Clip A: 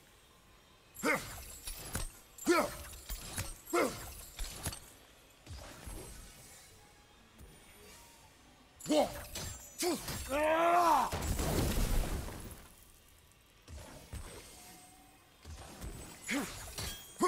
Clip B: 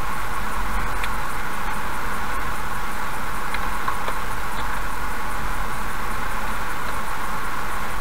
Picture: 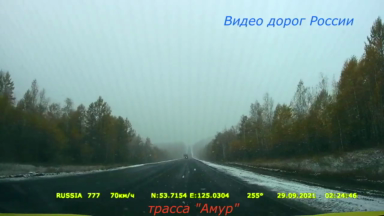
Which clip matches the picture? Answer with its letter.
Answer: B